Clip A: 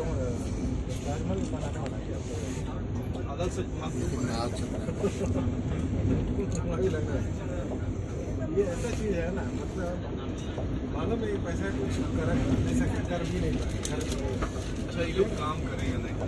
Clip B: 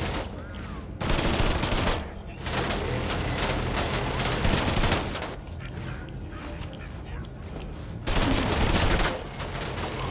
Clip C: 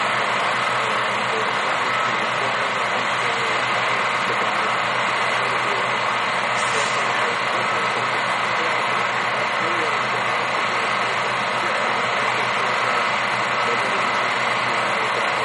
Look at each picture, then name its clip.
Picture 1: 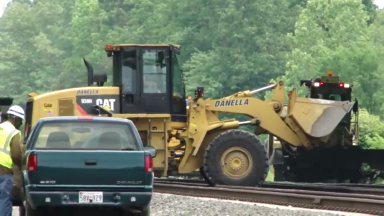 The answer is C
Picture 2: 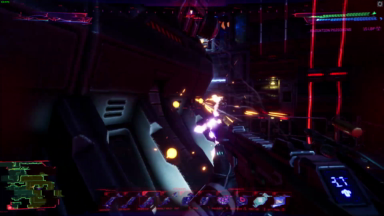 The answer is B